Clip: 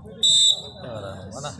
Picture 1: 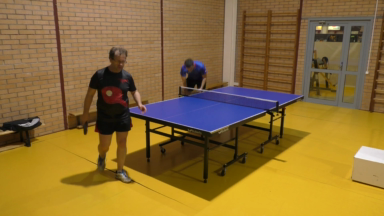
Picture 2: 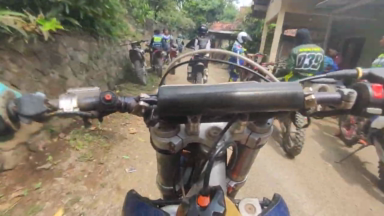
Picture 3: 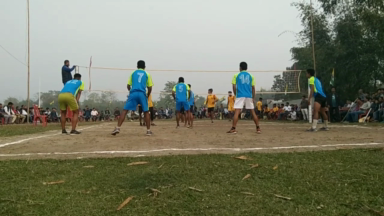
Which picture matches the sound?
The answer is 3